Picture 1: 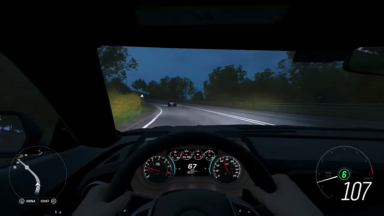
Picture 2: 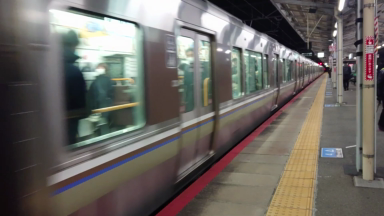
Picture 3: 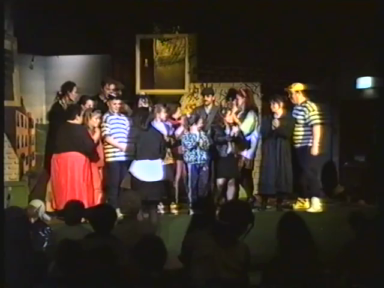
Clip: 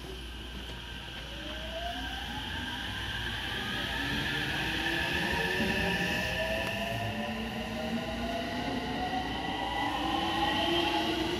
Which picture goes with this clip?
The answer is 2